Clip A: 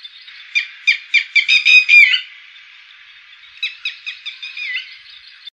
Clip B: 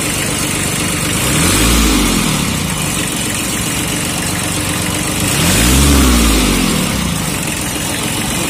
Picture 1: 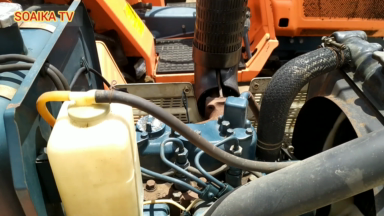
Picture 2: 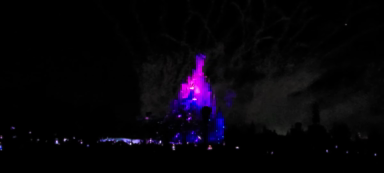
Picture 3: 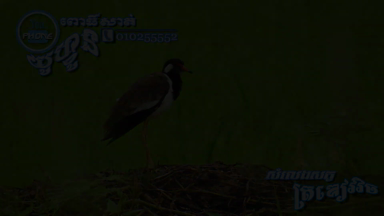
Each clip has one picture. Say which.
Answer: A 3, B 1